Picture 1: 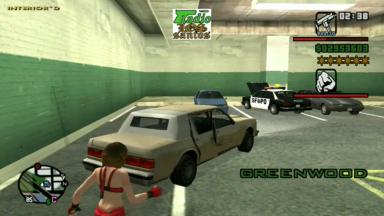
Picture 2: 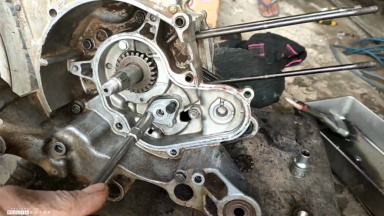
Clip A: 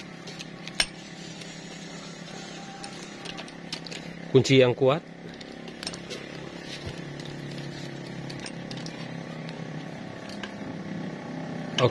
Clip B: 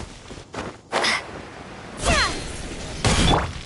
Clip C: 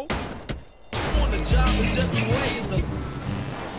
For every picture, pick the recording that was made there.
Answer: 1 C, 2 A